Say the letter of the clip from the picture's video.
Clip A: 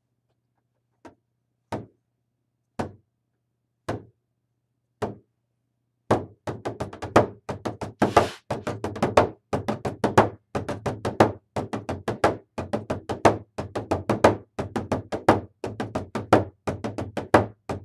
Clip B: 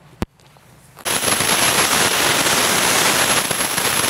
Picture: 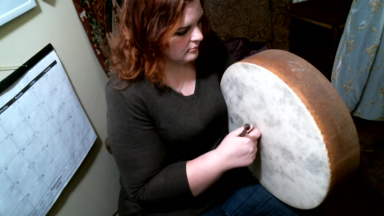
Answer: A